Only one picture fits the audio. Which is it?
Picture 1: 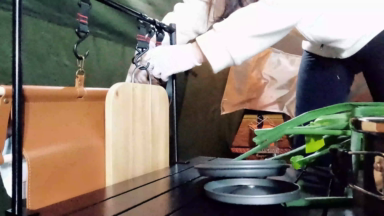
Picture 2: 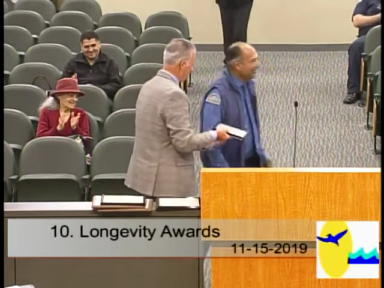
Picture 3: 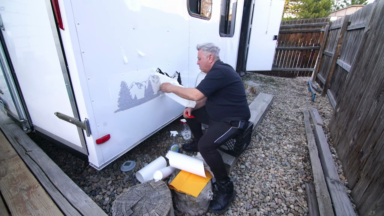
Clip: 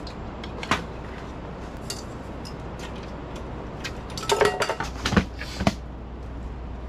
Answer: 1